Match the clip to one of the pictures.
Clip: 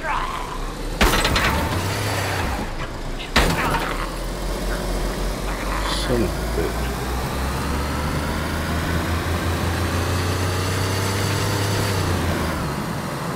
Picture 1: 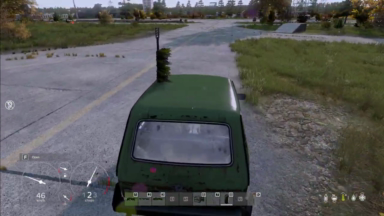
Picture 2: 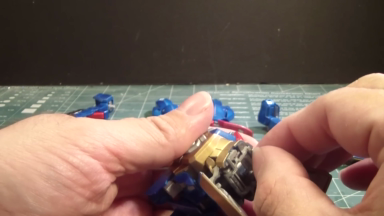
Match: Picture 1